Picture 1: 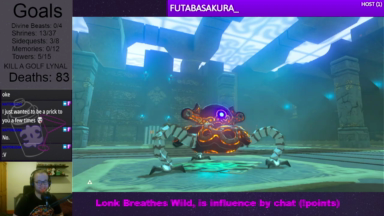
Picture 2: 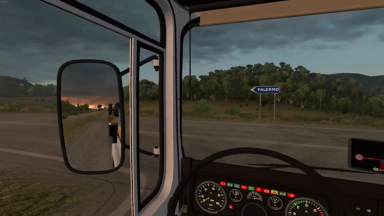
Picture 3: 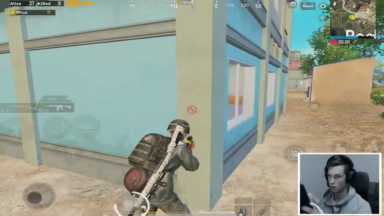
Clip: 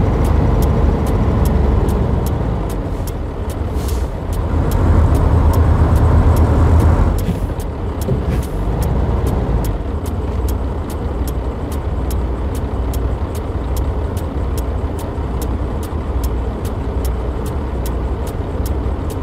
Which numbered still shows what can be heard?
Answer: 2